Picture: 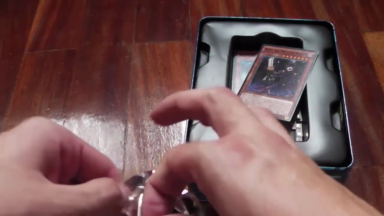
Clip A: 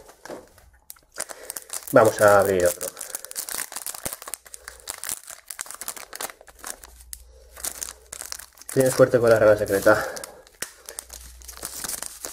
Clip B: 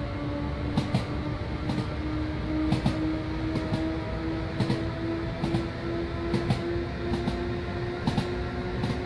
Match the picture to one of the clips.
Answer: A